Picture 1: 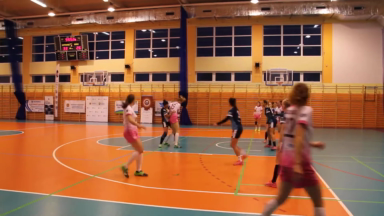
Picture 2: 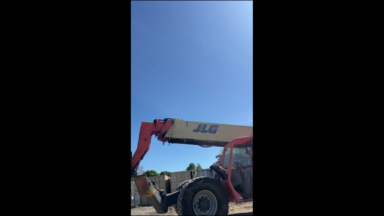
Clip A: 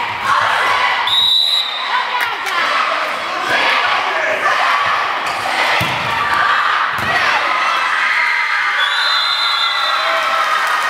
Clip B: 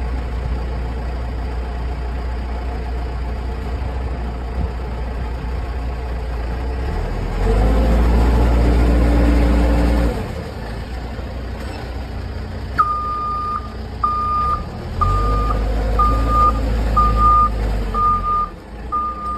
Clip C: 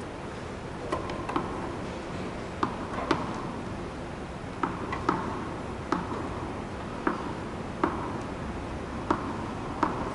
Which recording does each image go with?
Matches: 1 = A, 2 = B